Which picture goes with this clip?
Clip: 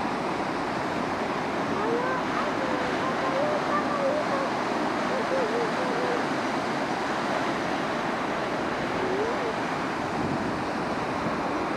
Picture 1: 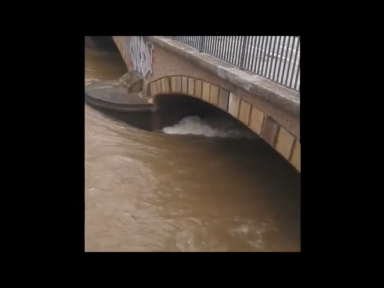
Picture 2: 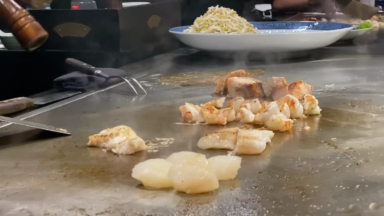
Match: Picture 1